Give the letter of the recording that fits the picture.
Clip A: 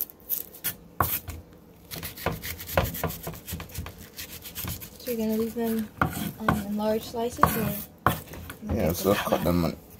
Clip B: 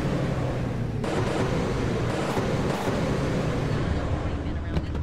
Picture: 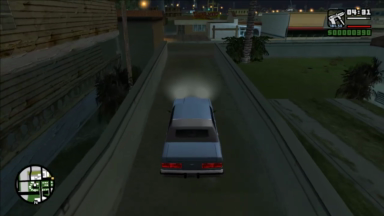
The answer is B